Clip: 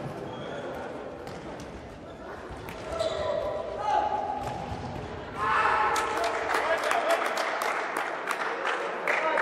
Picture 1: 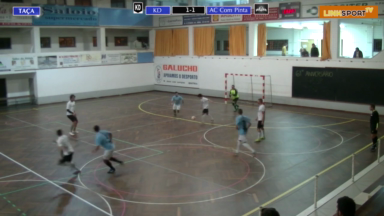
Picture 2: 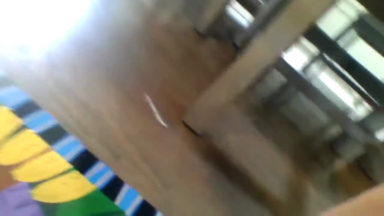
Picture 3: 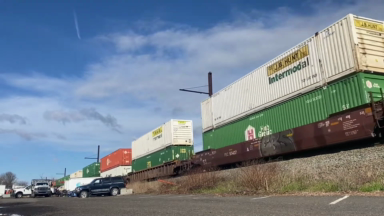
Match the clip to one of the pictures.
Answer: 1